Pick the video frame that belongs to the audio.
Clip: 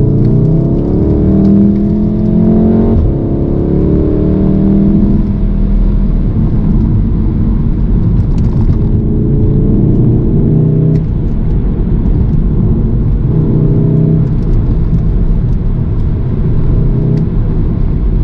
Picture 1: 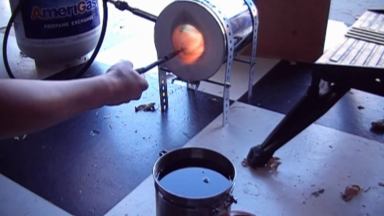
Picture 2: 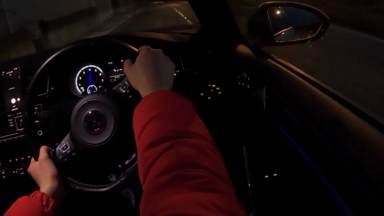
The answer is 2